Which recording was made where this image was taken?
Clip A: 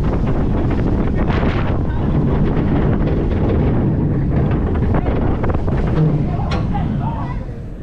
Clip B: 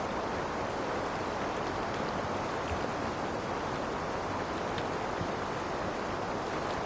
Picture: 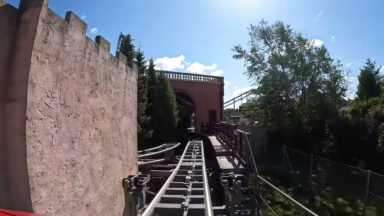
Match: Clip A